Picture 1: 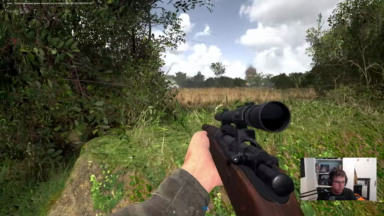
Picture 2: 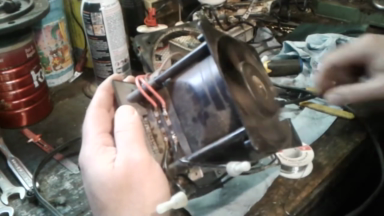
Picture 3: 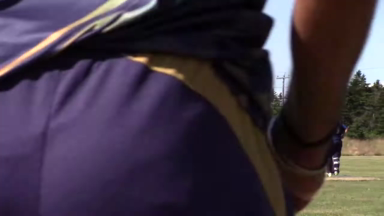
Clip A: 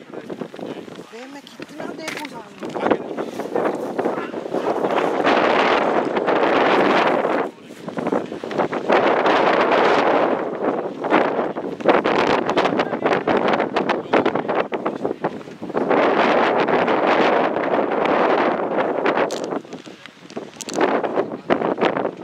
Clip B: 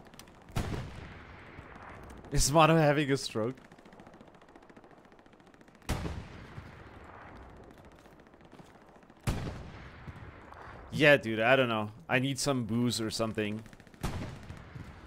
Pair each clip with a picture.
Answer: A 3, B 1